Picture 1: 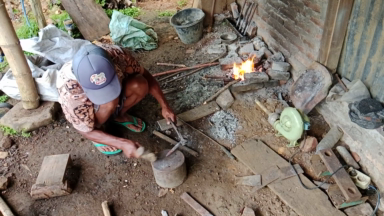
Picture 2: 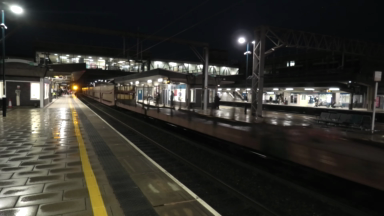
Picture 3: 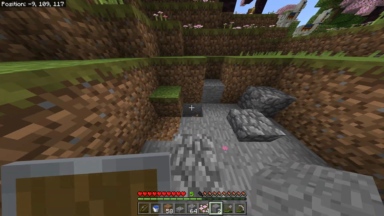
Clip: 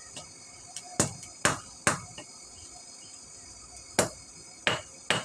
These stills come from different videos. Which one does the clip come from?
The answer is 1